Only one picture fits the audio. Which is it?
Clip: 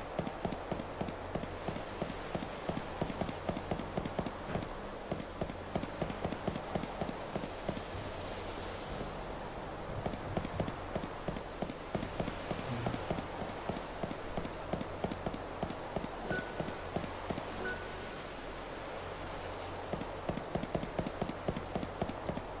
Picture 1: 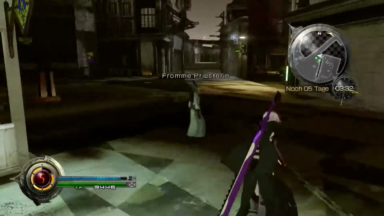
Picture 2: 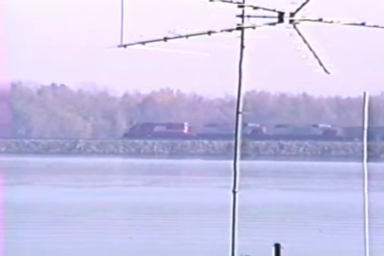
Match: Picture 1